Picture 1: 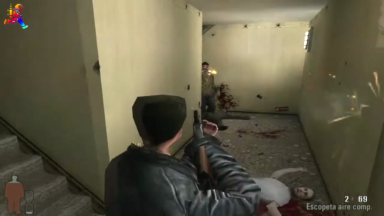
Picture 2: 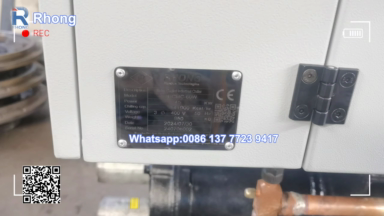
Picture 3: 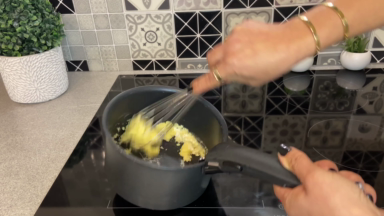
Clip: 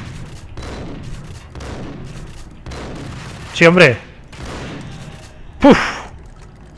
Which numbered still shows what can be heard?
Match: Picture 1